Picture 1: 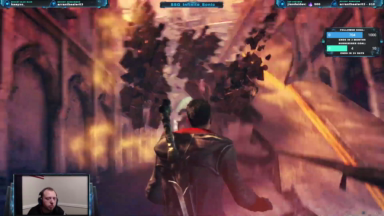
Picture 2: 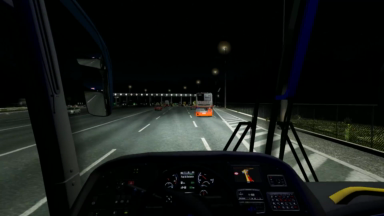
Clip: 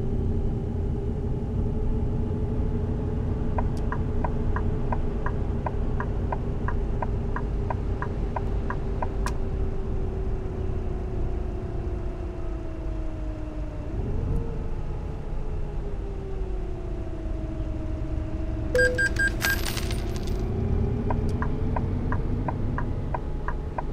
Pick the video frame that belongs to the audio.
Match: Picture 2